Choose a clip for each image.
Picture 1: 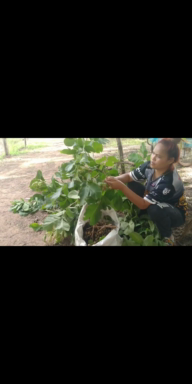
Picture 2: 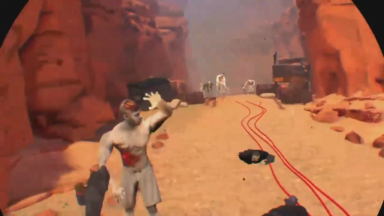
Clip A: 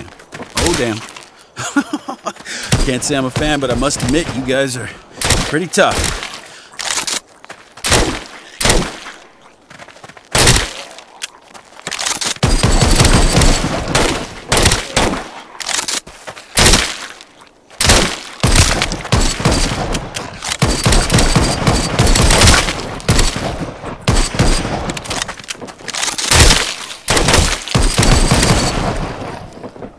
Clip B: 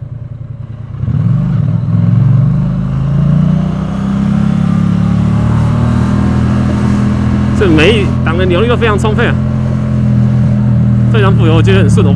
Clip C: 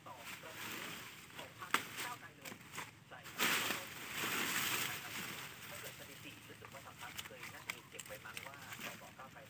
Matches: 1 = C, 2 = A